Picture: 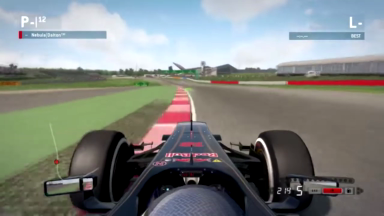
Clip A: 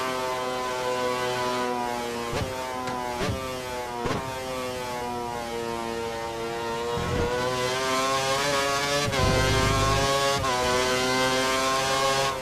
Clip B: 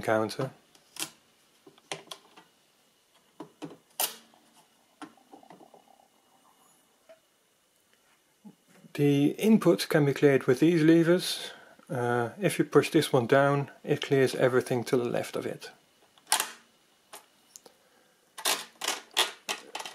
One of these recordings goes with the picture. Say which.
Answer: A